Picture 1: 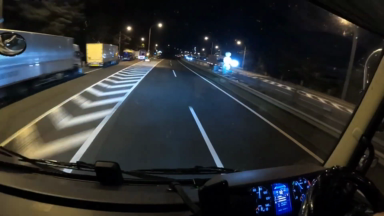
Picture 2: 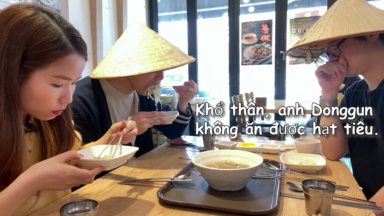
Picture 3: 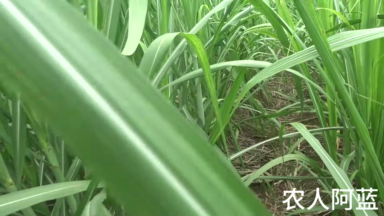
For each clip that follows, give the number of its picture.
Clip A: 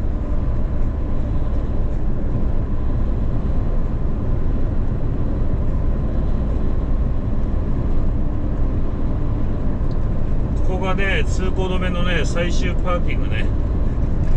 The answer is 1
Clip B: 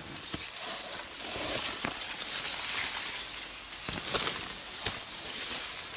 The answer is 3